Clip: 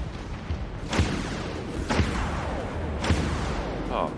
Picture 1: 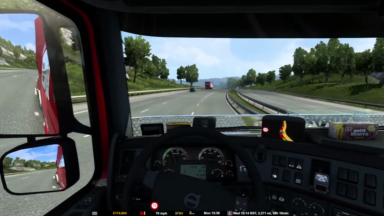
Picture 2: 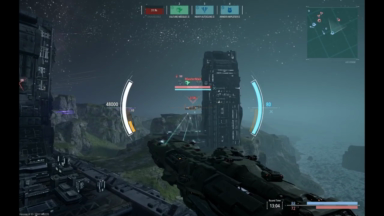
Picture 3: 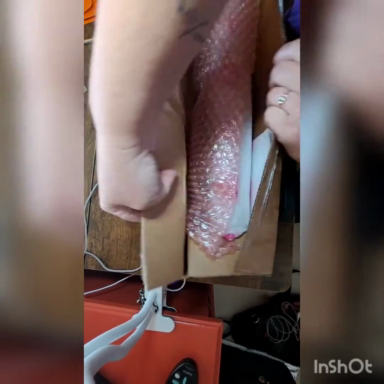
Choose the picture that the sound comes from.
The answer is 2